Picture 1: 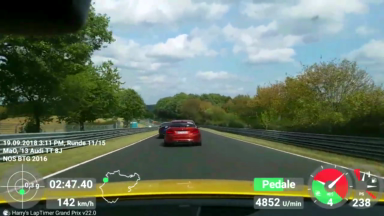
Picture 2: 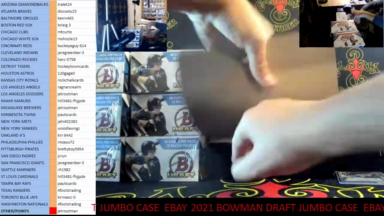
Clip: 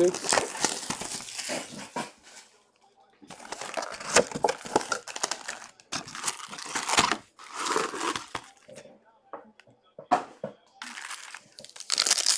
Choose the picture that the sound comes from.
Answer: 2